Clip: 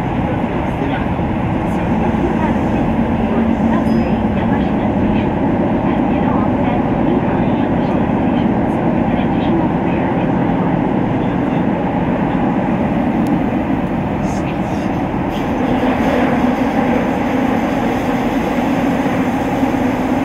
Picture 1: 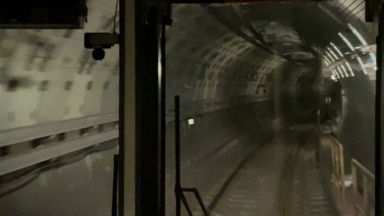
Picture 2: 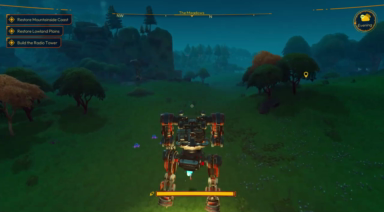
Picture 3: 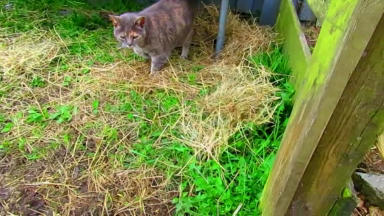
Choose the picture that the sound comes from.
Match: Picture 1